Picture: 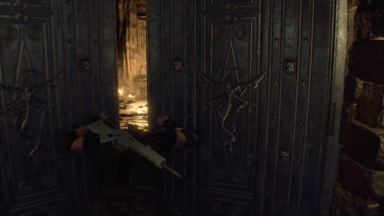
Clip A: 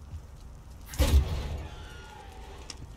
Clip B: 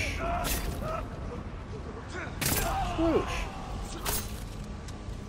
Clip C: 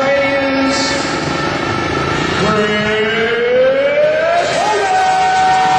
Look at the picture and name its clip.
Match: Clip A